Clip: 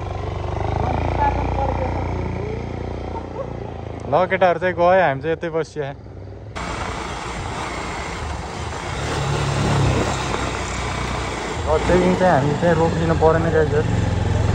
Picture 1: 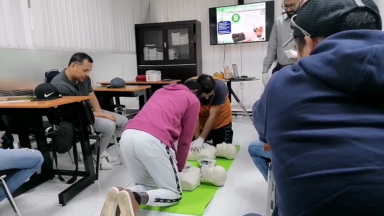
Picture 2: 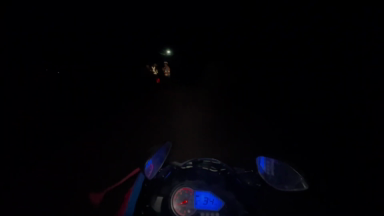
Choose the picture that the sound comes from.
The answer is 2